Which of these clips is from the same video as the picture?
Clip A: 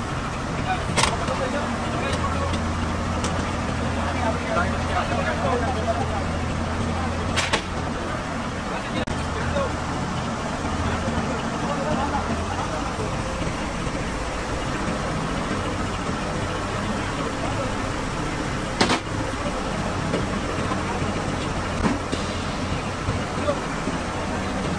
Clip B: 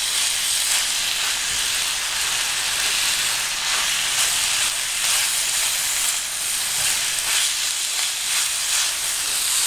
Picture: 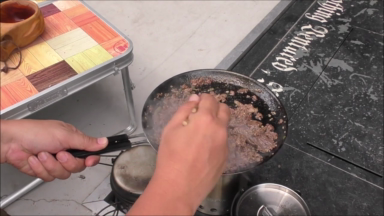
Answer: B